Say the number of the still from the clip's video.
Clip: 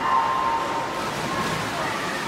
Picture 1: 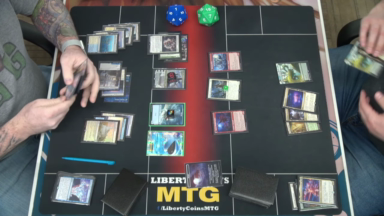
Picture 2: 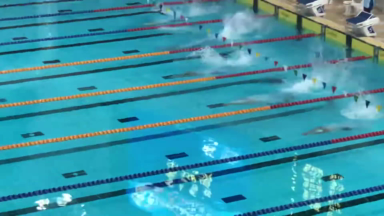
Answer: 2